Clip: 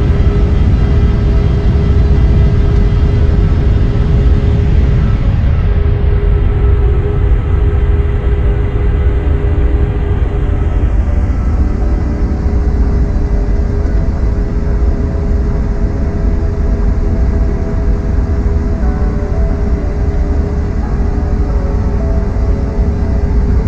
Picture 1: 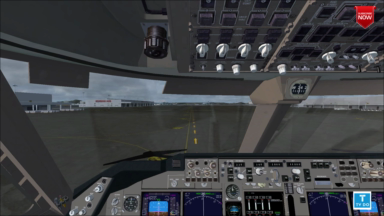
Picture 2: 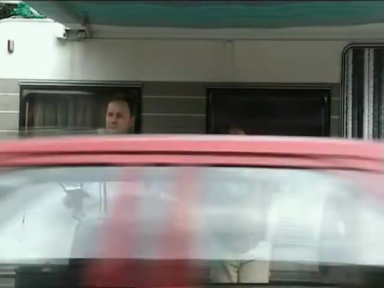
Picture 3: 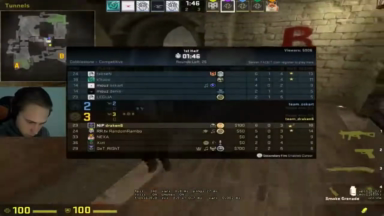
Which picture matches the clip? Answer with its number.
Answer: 1